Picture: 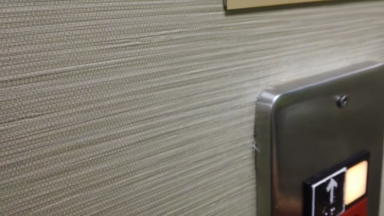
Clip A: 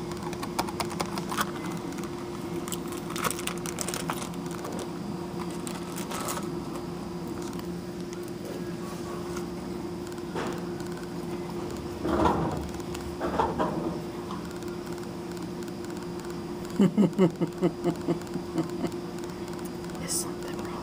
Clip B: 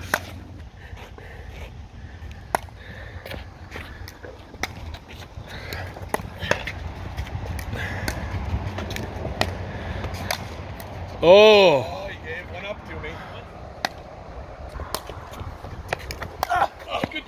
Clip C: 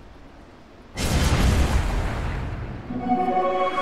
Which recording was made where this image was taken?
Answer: A